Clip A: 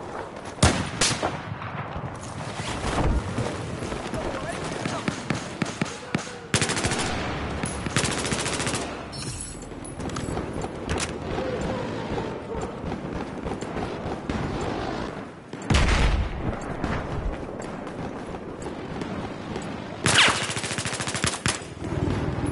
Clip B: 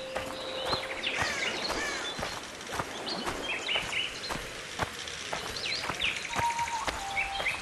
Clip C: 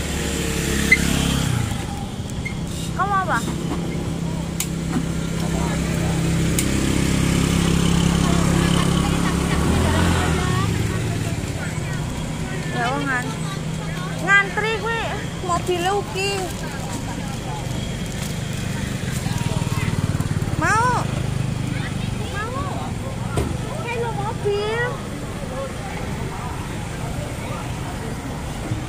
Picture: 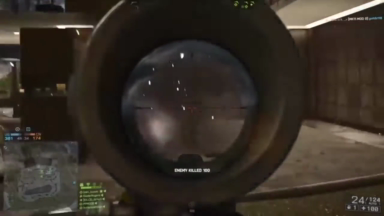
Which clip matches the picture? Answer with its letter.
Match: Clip A